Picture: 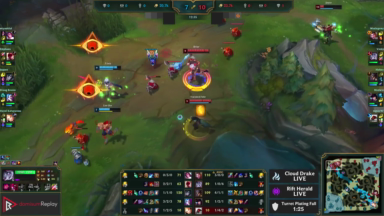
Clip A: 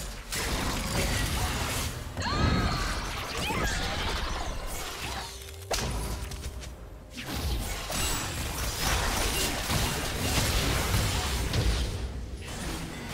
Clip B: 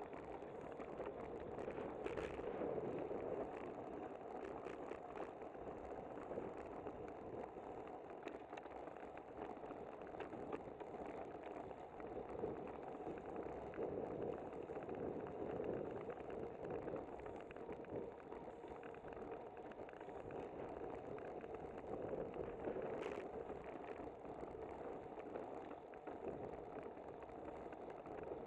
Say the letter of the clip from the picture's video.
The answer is A